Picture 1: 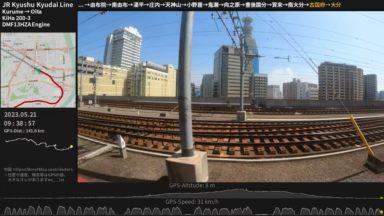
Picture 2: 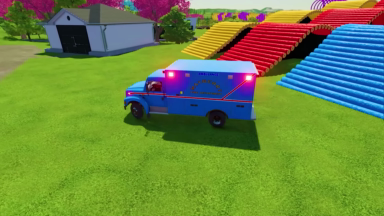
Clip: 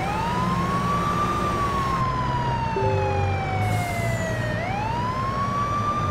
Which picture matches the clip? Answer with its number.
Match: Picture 2